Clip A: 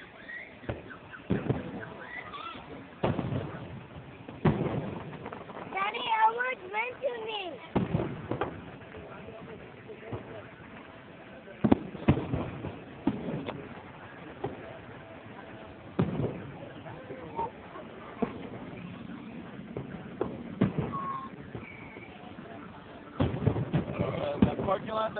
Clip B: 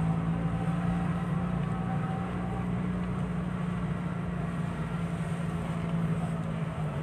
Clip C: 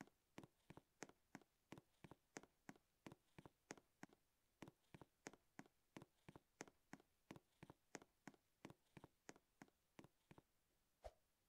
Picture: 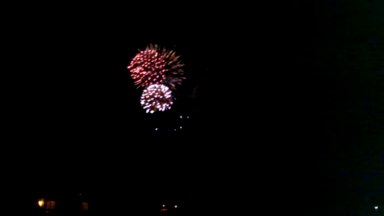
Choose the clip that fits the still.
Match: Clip A